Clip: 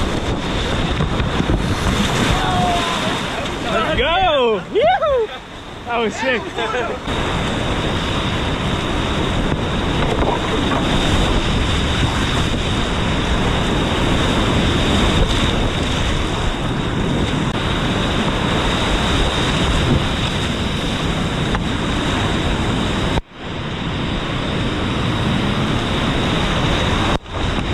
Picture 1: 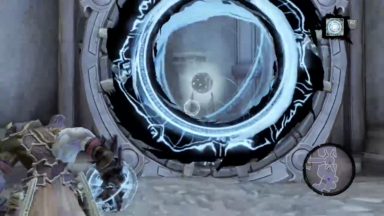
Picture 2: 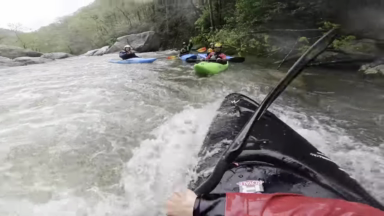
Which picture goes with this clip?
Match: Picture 2